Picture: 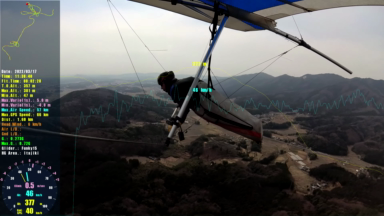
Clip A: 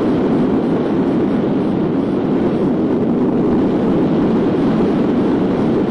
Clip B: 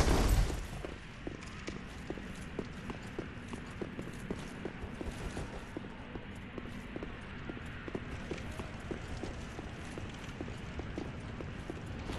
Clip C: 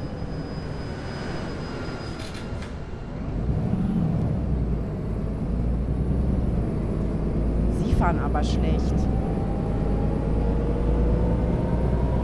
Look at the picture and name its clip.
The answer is A